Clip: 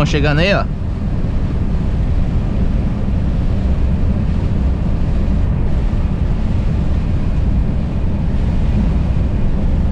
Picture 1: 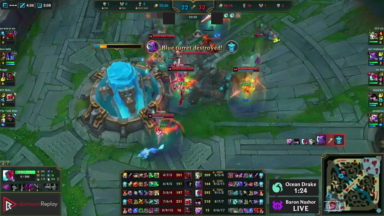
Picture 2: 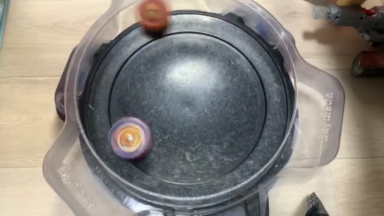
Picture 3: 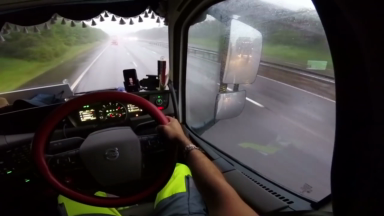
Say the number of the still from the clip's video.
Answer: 3